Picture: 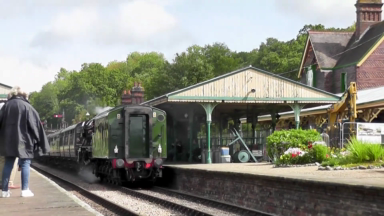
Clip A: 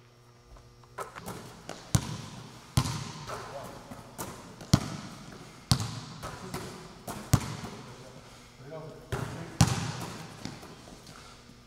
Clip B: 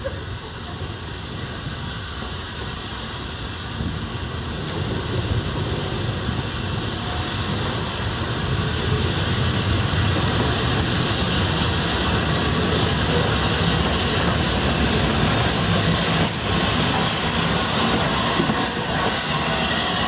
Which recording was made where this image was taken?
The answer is B